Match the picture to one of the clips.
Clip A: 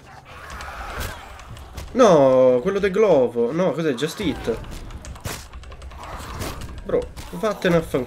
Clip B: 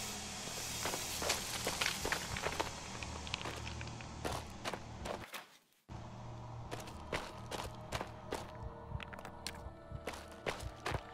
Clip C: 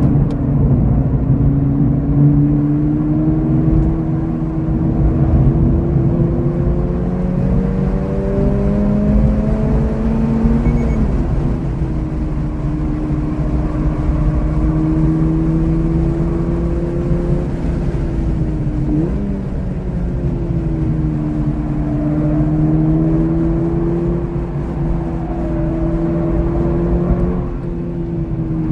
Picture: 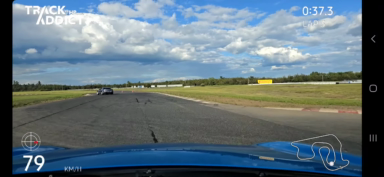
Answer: C